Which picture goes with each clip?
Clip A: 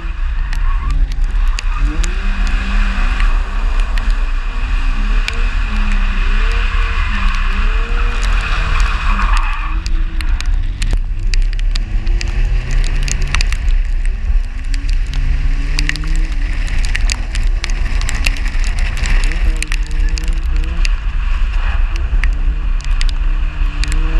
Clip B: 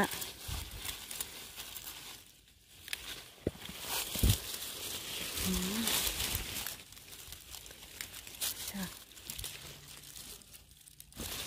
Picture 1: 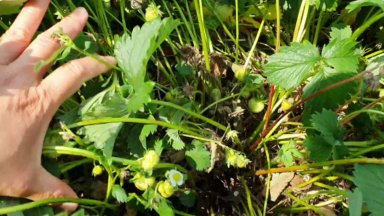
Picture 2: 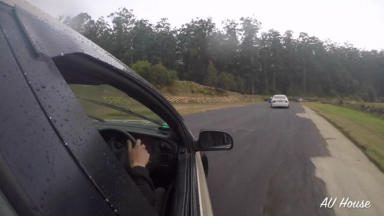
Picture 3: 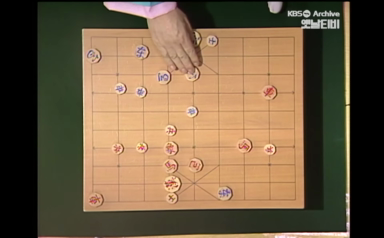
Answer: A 2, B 1